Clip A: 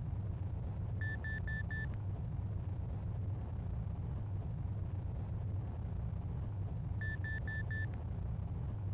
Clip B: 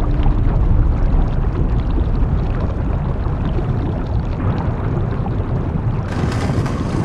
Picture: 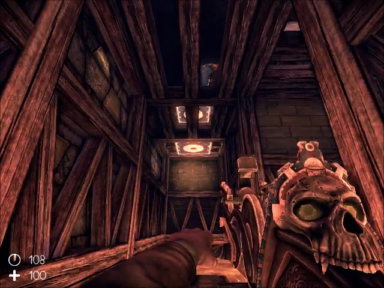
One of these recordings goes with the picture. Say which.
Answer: B